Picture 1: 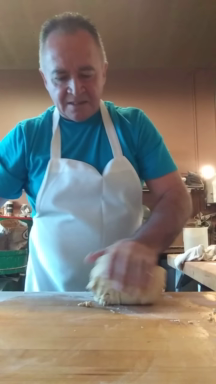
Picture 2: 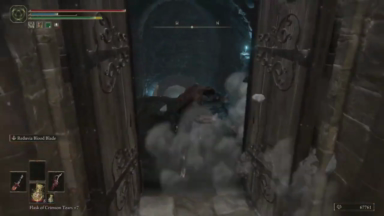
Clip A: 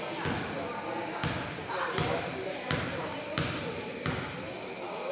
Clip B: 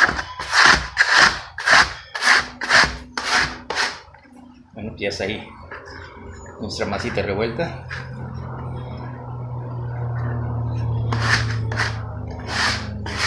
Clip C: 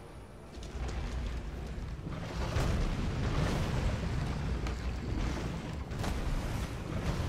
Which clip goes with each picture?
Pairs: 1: B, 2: C